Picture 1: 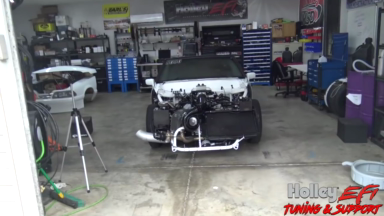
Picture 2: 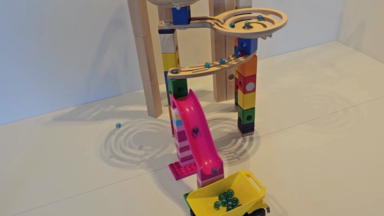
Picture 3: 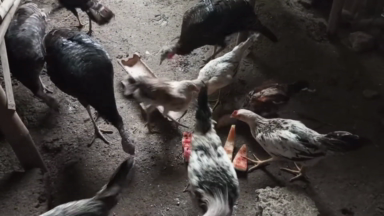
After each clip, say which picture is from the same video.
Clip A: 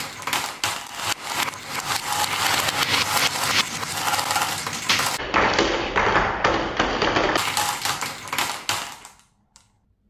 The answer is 2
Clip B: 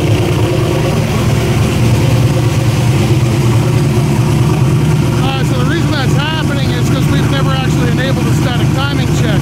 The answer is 1